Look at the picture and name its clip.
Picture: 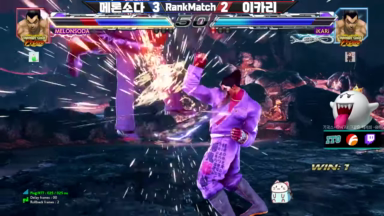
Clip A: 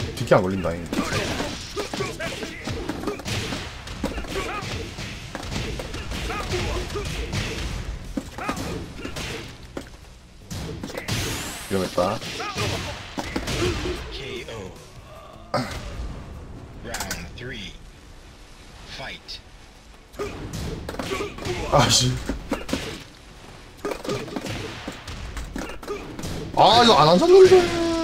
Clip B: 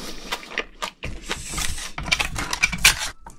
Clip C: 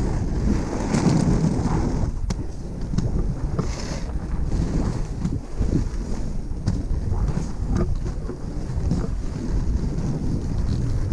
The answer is A